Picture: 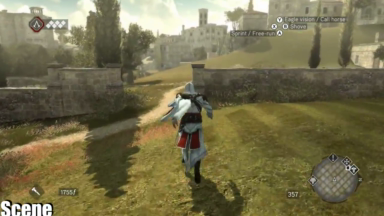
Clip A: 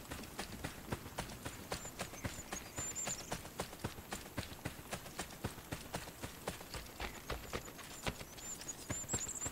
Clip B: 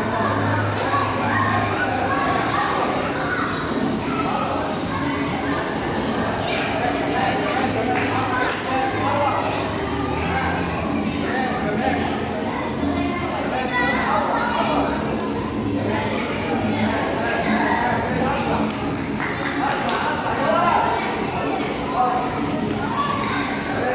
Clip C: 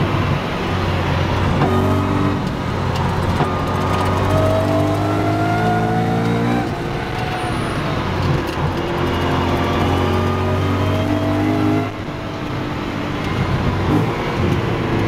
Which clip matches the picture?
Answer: A